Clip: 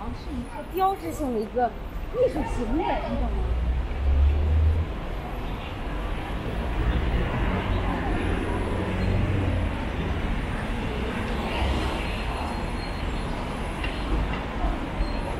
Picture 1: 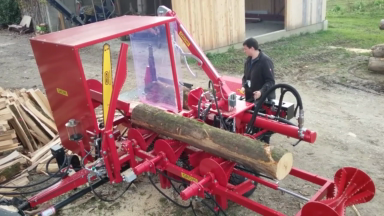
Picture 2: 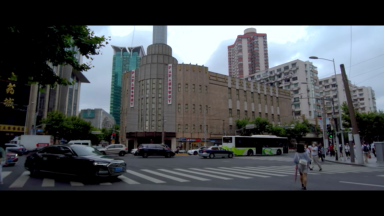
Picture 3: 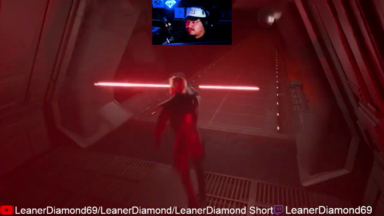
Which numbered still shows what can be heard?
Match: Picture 2